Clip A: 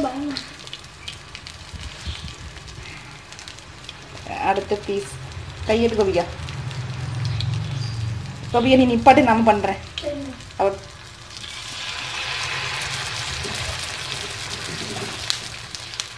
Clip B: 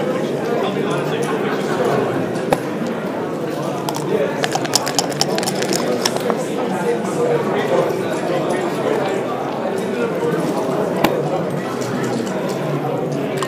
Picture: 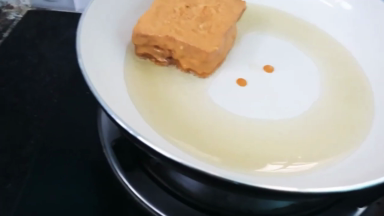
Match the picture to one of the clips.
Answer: A